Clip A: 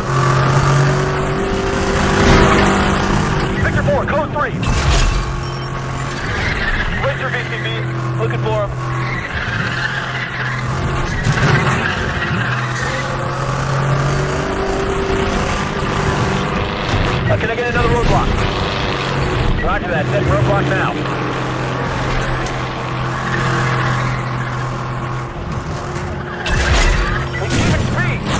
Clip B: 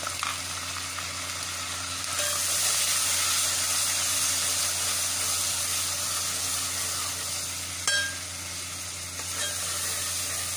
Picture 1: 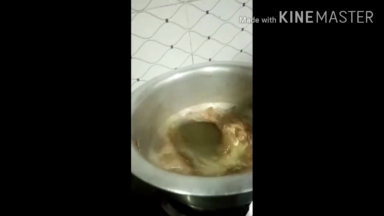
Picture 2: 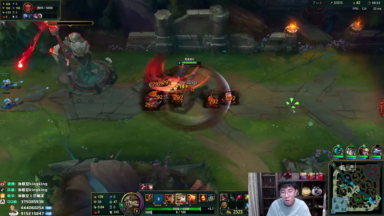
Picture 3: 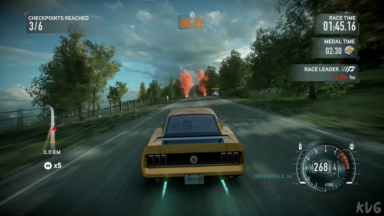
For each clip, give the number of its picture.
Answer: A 3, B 1